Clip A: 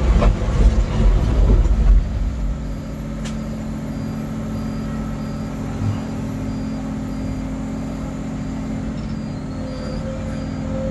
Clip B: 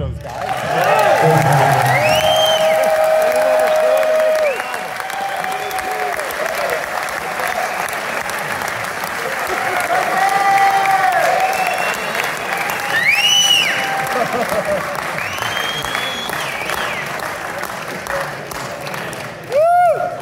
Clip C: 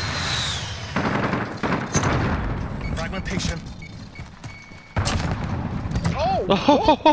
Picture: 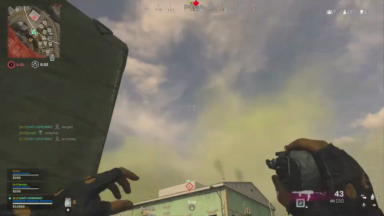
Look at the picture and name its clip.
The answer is C